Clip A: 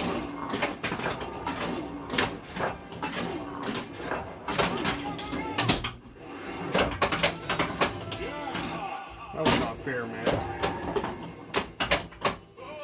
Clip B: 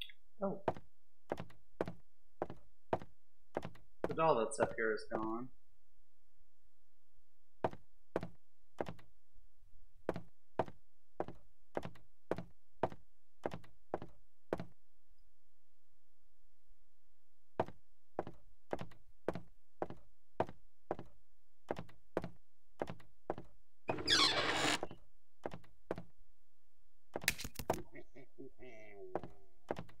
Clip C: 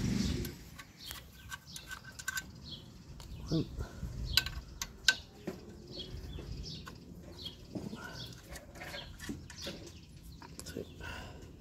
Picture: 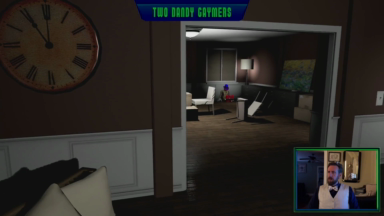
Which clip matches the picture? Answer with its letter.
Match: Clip B